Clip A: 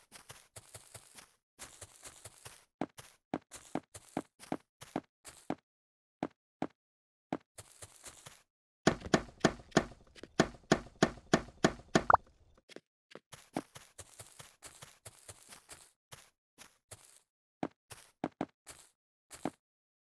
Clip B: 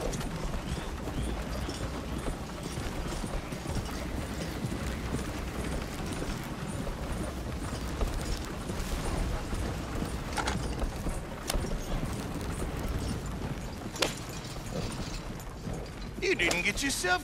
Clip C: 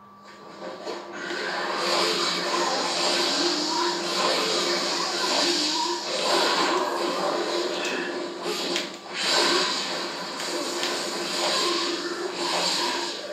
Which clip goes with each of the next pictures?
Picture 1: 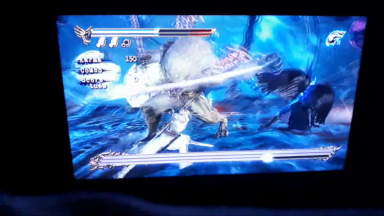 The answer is C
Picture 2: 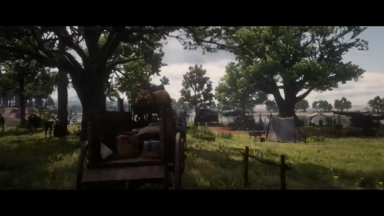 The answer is B